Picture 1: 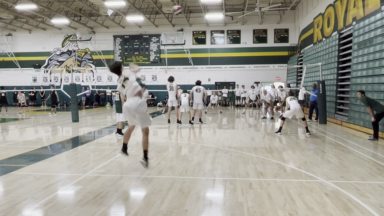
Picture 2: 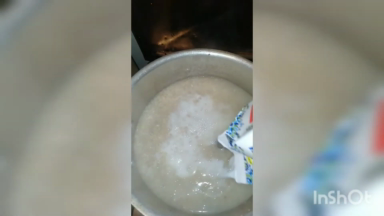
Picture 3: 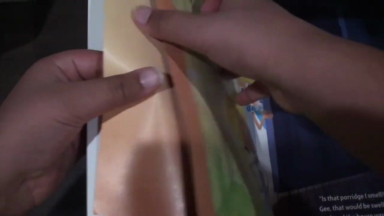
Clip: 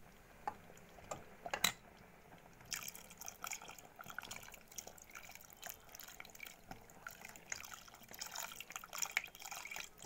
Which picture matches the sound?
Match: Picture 2